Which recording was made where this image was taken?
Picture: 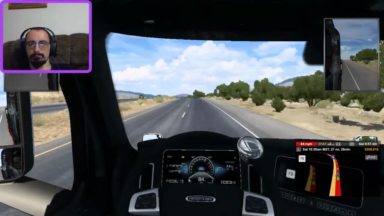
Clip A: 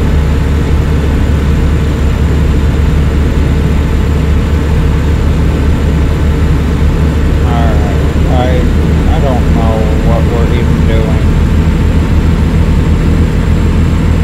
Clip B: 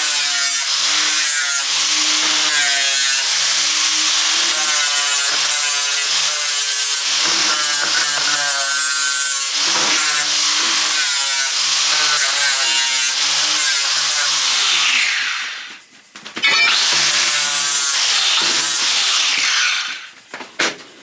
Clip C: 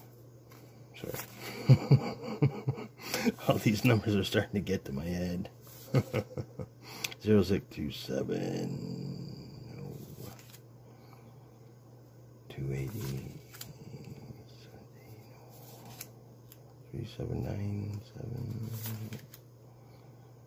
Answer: A